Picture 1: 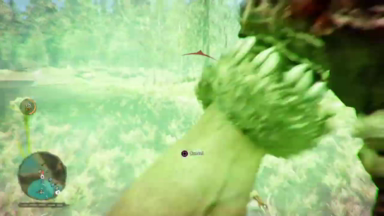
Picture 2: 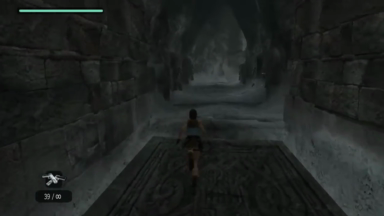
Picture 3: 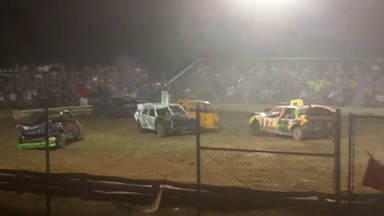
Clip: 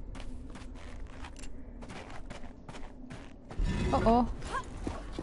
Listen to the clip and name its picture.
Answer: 2